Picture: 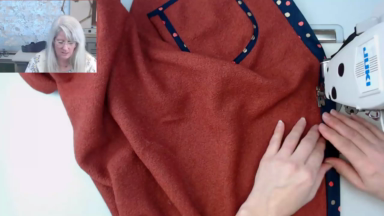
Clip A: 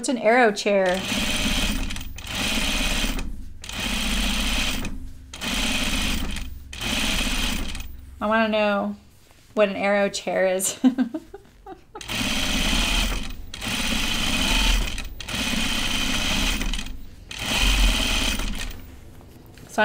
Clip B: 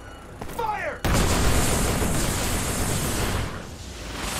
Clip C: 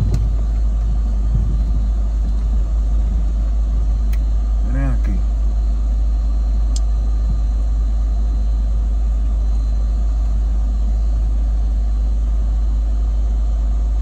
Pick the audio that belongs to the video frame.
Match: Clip A